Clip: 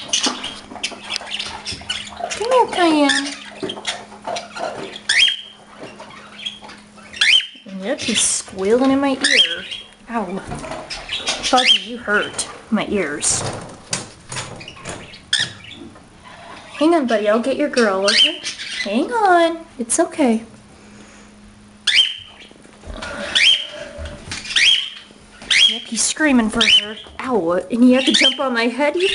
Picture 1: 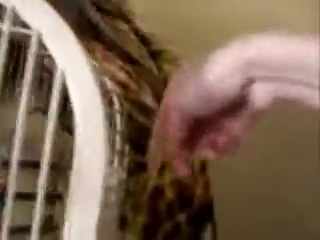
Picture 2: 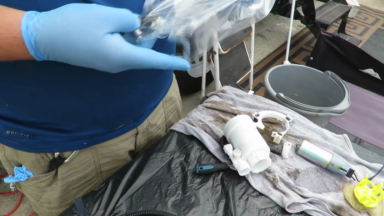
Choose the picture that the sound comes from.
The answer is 1